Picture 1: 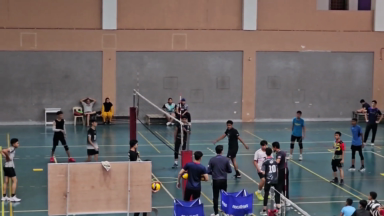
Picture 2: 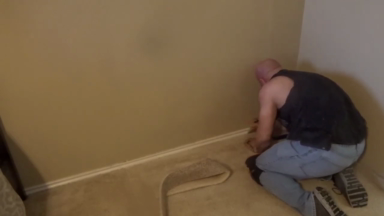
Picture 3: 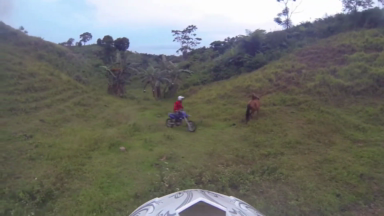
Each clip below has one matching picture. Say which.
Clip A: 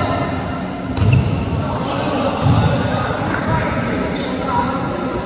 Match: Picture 1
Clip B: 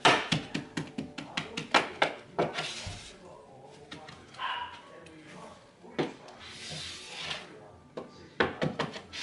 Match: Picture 2